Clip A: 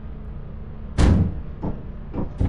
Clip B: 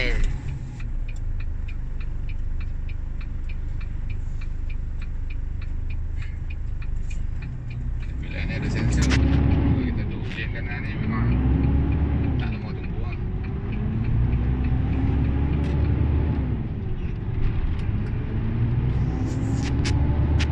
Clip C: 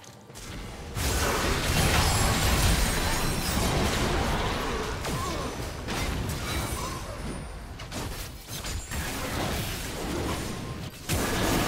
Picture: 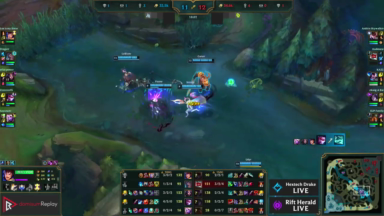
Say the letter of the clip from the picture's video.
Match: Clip C